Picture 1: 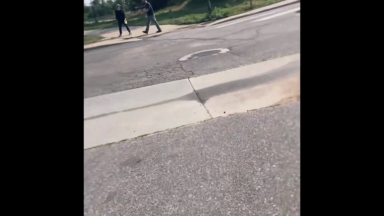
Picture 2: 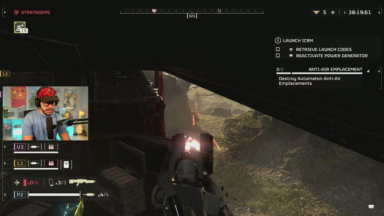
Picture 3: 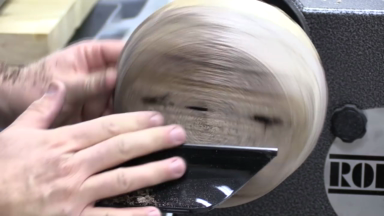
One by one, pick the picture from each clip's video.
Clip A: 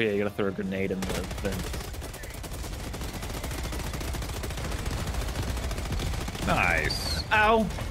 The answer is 2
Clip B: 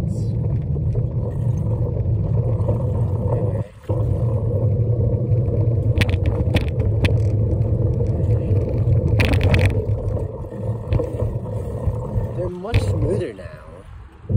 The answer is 1